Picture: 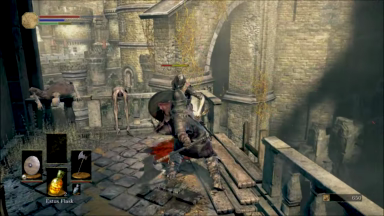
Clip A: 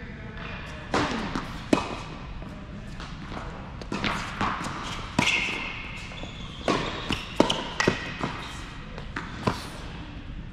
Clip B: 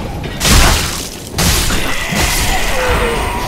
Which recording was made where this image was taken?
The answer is B